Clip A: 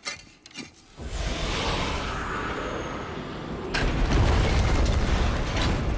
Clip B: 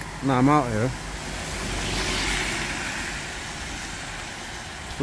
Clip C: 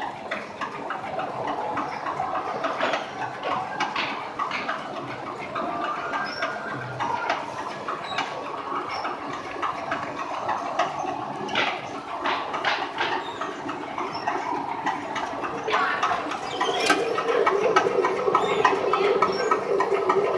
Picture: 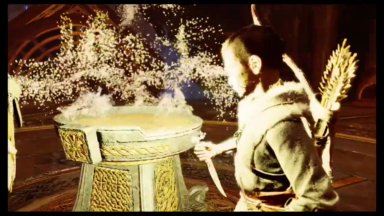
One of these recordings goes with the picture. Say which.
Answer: A